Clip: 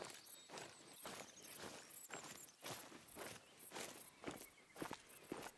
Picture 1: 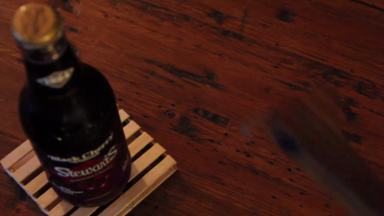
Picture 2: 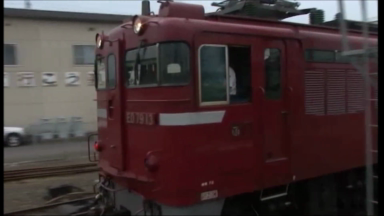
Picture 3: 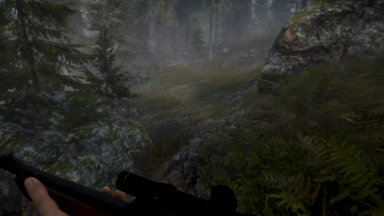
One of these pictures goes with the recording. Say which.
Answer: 3